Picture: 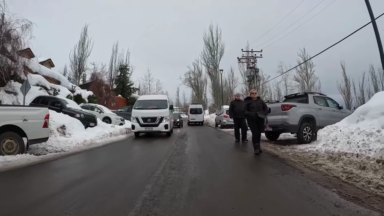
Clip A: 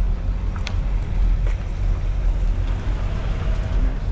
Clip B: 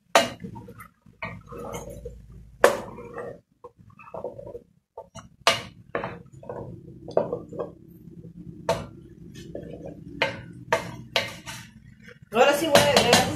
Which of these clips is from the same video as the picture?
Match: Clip A